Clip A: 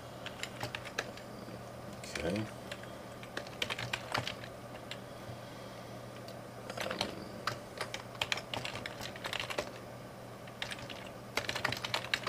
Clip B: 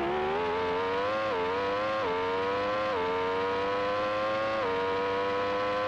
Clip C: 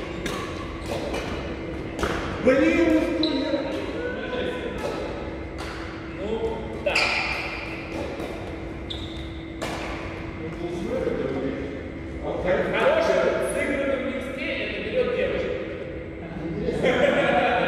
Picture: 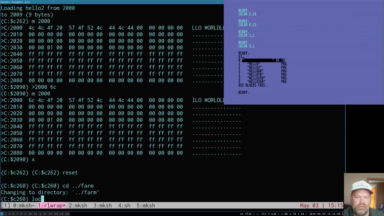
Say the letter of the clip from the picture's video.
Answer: A